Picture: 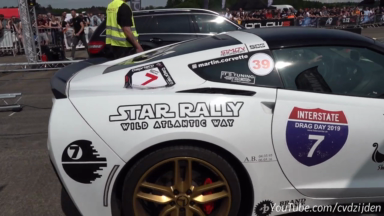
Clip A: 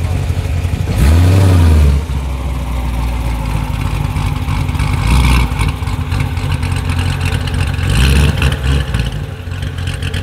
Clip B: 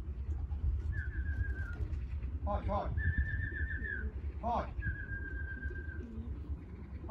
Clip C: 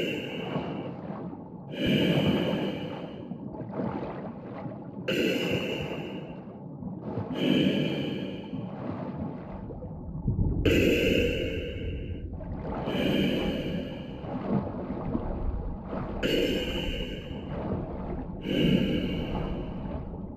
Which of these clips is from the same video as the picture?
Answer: A